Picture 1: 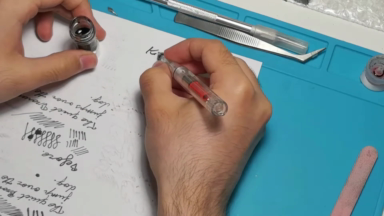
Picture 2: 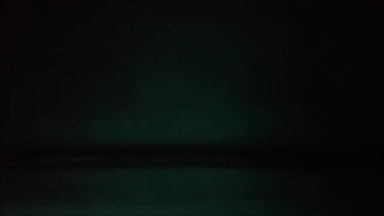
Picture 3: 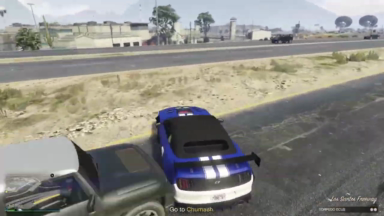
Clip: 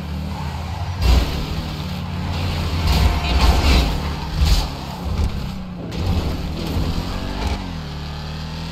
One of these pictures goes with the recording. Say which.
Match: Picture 3